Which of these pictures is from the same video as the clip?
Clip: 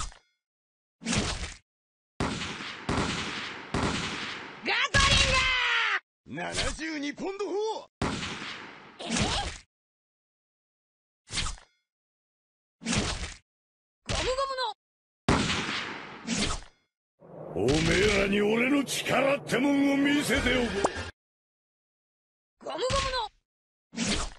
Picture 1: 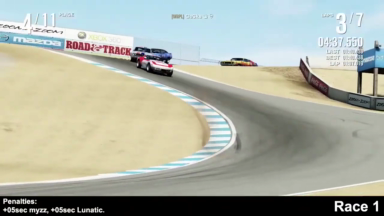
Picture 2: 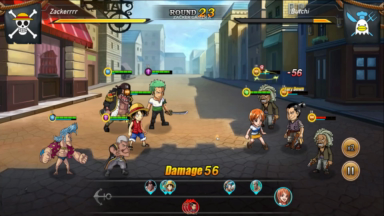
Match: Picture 2